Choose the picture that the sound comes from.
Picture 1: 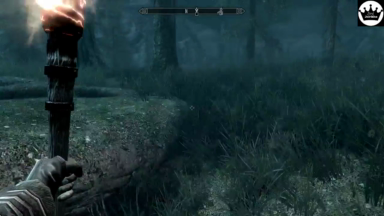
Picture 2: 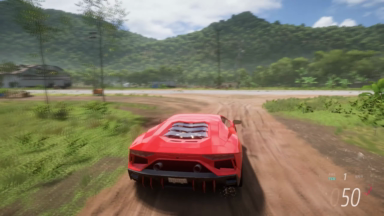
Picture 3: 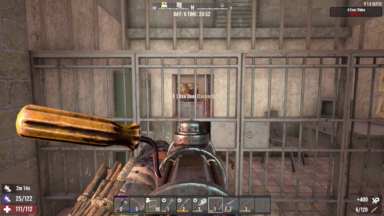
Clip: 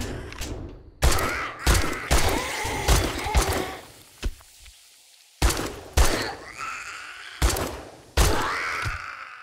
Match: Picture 3